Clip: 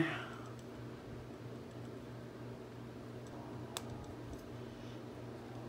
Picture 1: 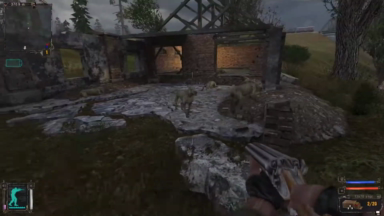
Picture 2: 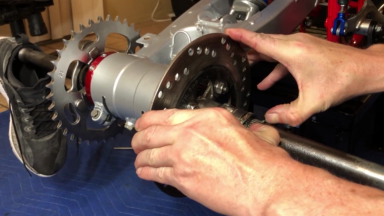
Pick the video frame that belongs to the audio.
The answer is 2